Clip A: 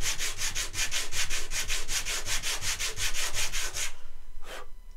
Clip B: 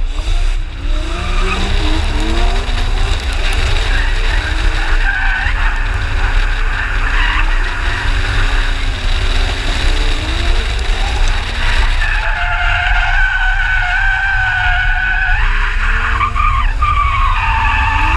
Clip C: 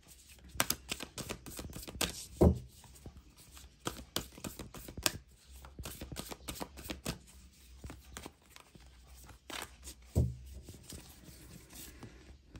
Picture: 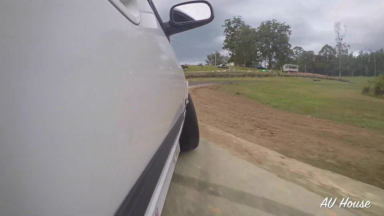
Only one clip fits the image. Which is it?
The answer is B